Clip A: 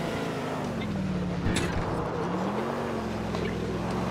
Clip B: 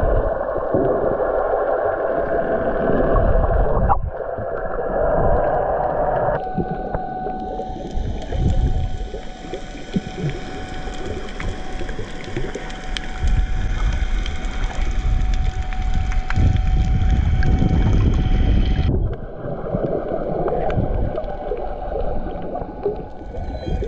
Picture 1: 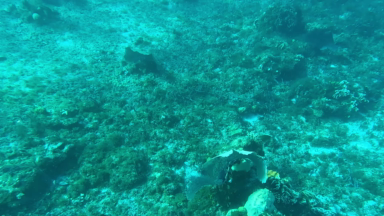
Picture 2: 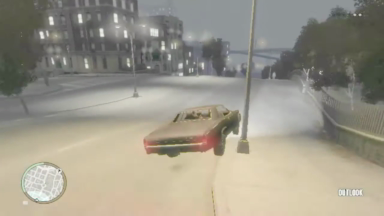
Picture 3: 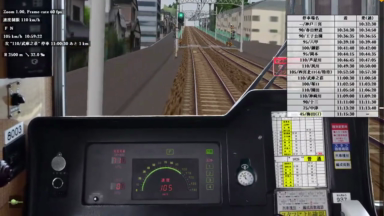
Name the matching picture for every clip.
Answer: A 2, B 1